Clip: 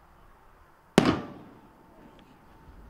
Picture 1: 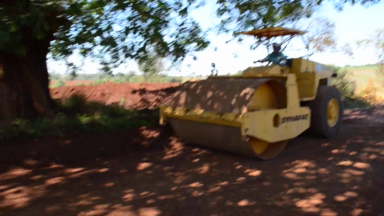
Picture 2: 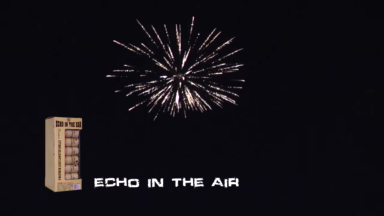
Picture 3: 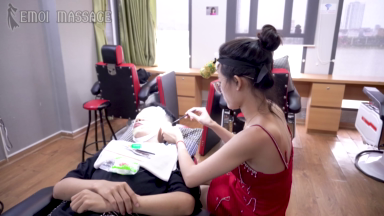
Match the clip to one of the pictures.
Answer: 2